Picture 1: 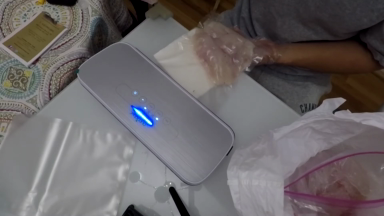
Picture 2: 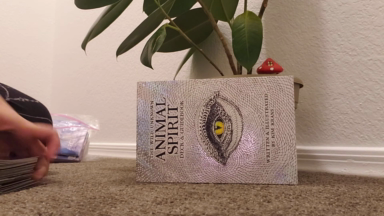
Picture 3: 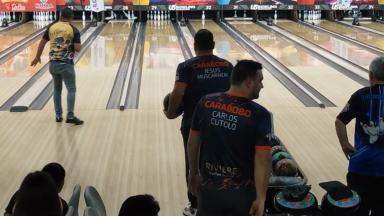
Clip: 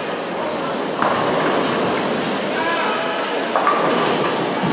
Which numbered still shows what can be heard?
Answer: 3